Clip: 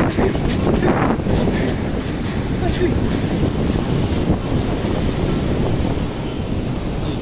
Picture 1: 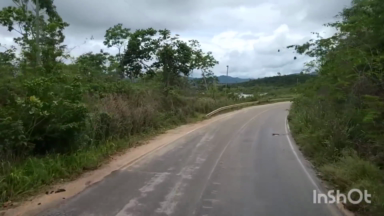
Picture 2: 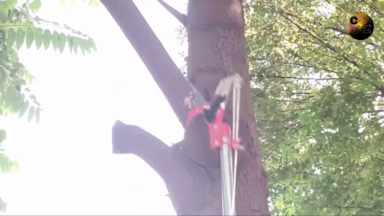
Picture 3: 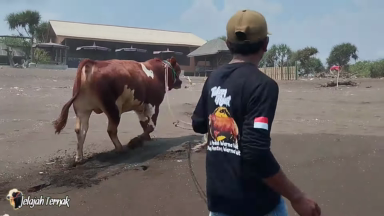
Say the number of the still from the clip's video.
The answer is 3